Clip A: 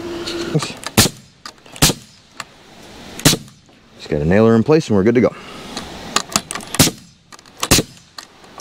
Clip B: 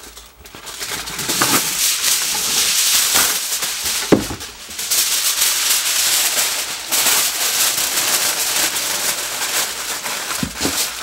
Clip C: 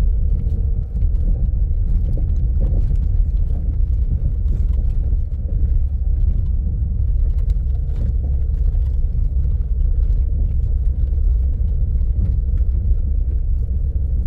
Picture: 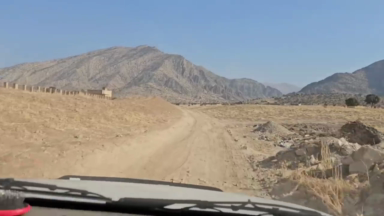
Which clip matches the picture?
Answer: C